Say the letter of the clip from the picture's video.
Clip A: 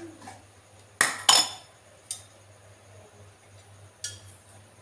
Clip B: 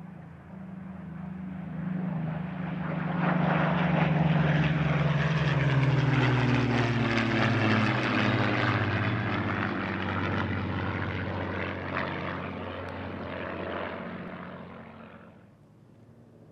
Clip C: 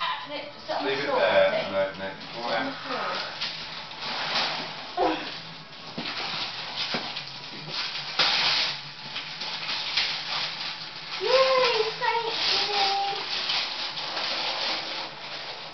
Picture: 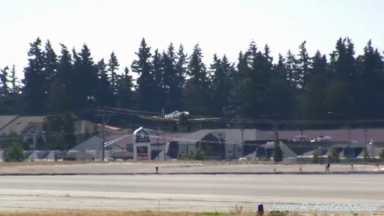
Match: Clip B